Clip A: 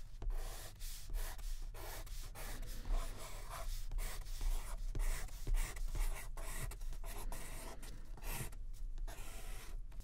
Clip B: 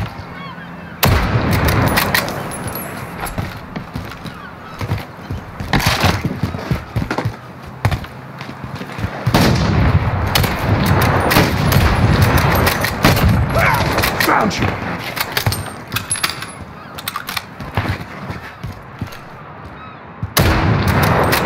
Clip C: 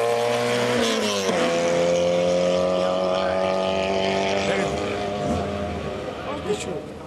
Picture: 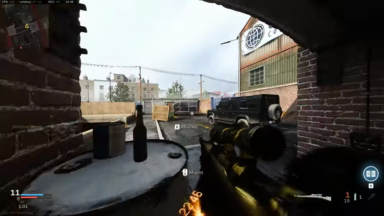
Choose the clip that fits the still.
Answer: B